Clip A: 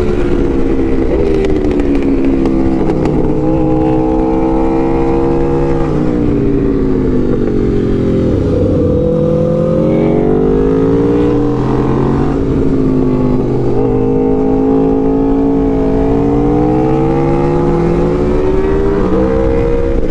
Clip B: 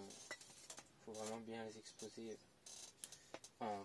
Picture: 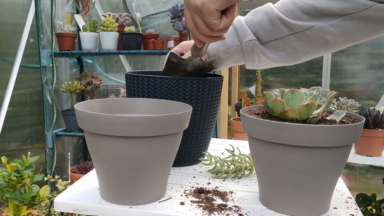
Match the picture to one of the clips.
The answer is B